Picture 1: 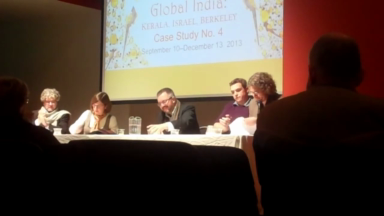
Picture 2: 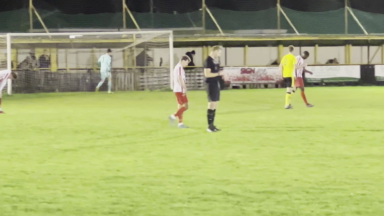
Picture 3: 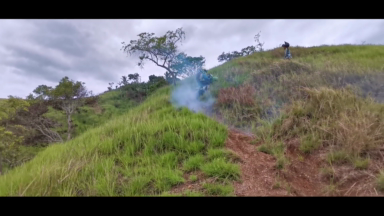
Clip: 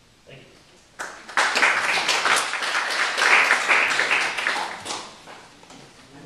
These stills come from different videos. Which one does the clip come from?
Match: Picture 1